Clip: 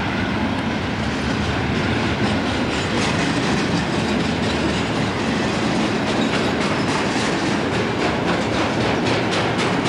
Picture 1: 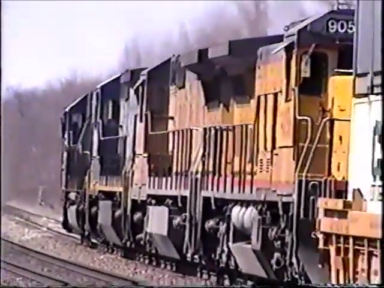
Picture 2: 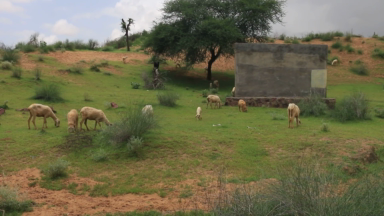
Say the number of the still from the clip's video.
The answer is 1